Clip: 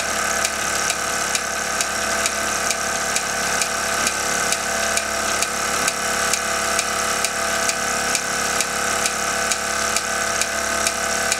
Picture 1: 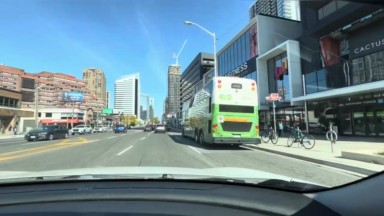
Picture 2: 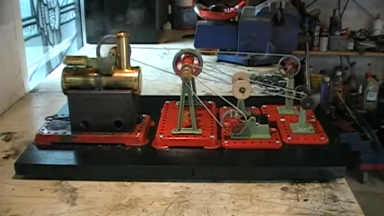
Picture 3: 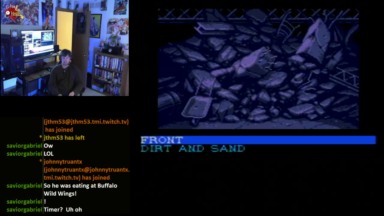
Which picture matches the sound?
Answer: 2